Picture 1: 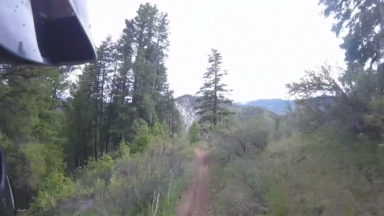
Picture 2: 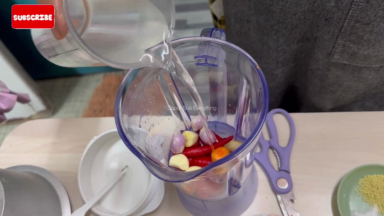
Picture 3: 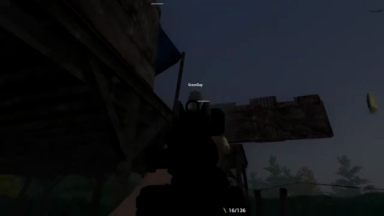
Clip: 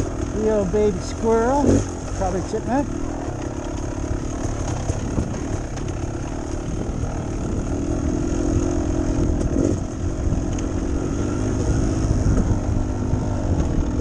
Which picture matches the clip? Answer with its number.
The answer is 1